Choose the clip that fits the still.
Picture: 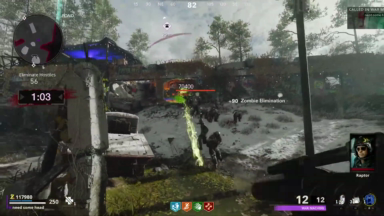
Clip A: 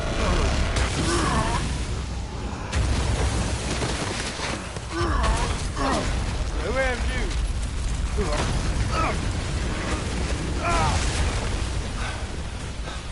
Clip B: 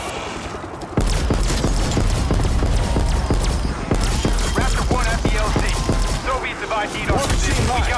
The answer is B